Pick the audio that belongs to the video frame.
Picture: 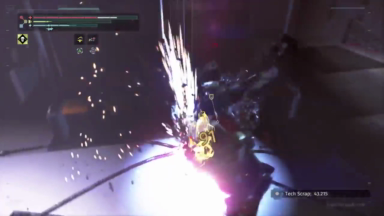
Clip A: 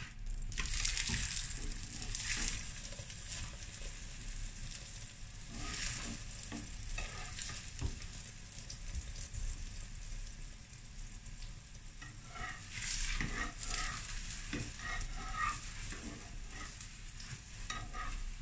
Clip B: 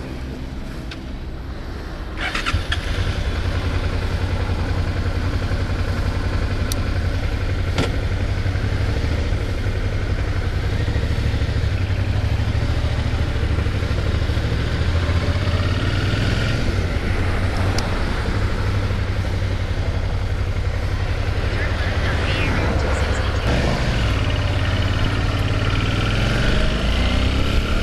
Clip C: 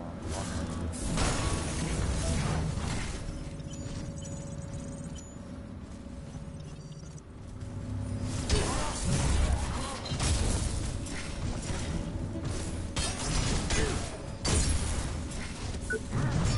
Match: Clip C